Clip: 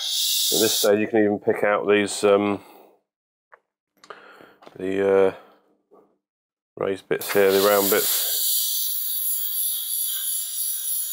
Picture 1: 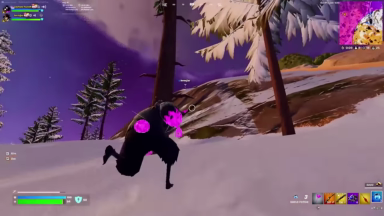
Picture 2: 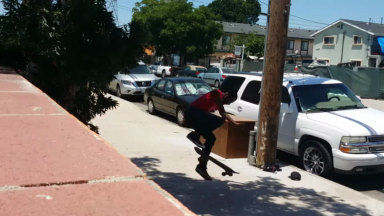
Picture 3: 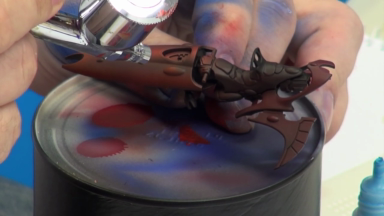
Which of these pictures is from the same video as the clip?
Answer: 3